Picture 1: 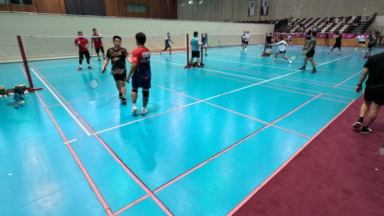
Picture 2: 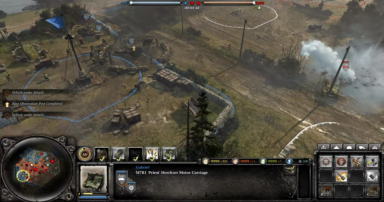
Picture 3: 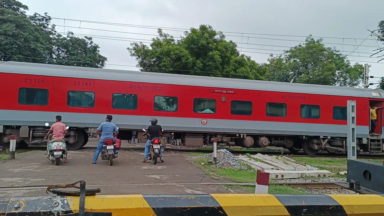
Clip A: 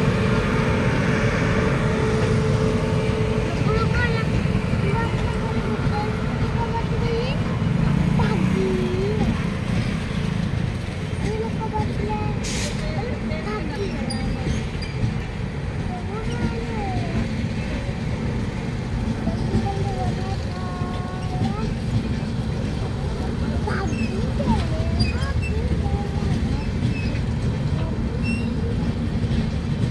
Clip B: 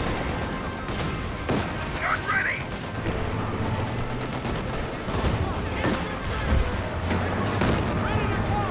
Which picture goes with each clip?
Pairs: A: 3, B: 2